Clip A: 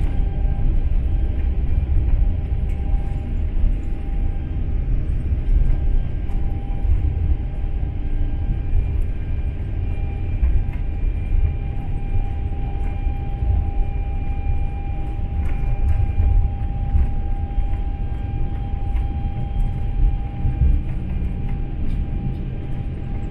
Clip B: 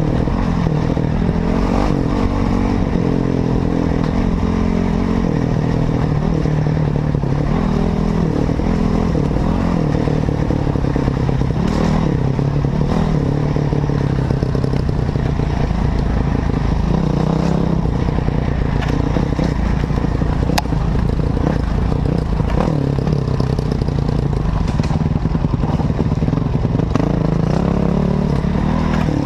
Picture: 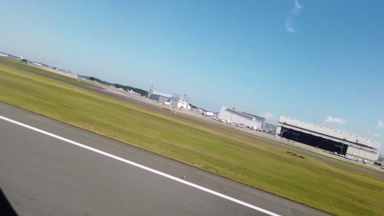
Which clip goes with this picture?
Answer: A